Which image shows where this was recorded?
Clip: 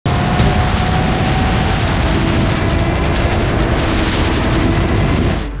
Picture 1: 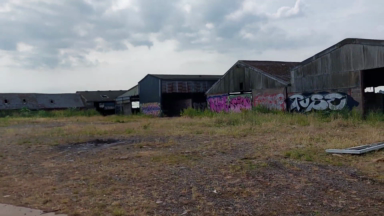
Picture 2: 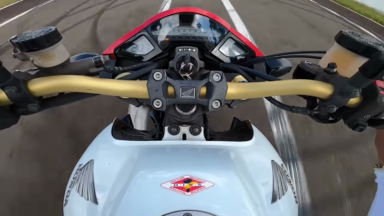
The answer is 2